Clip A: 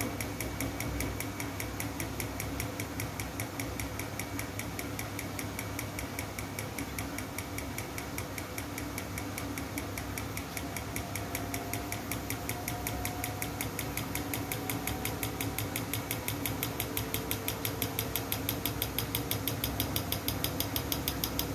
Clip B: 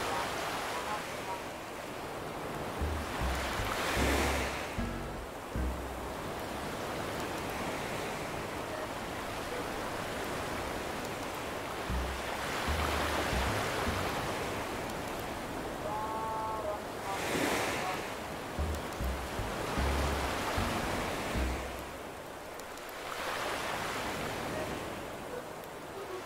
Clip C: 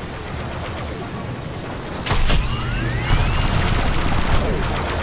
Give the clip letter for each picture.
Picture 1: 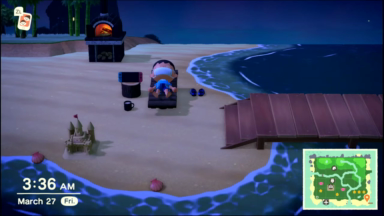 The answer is B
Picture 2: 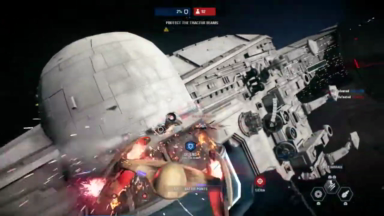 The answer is C